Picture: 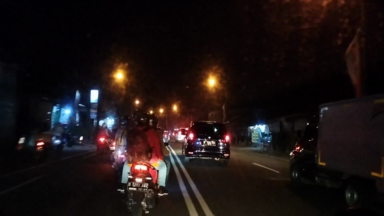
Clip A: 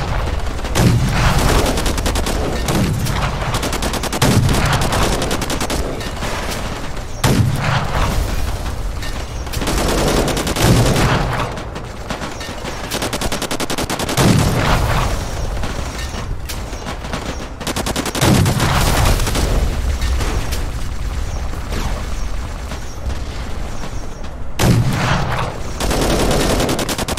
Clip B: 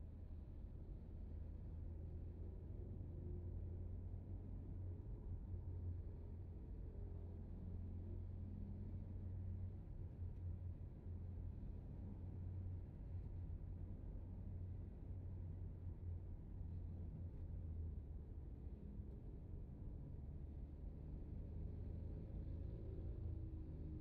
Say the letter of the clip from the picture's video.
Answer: B